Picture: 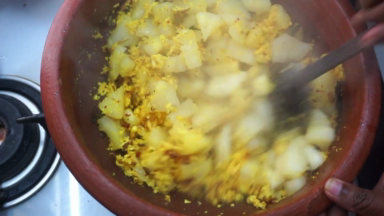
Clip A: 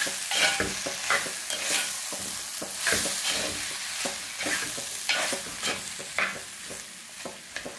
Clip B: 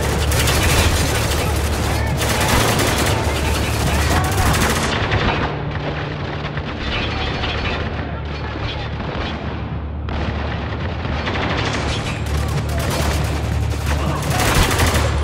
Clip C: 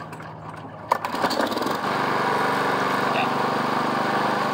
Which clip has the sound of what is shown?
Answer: A